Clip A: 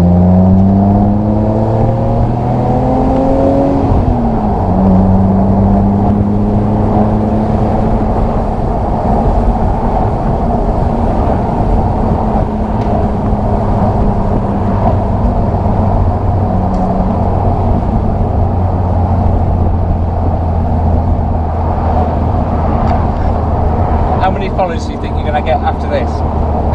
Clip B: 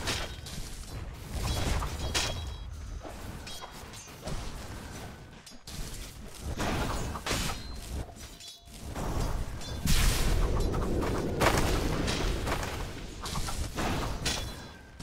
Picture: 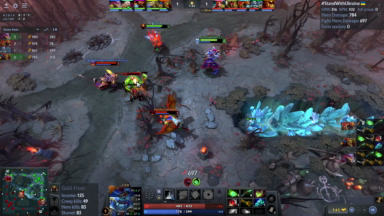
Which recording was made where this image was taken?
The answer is B